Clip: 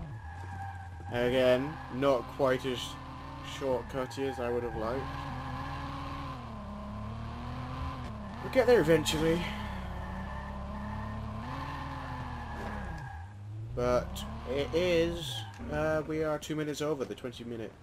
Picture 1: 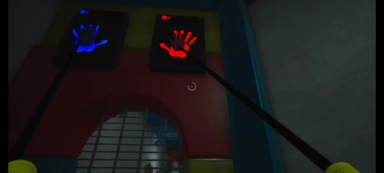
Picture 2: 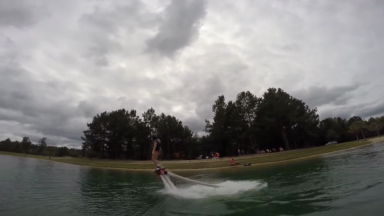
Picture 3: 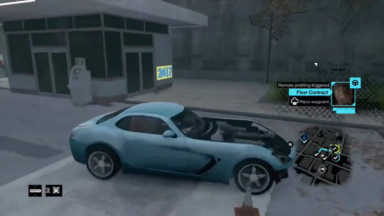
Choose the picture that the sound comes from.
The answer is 3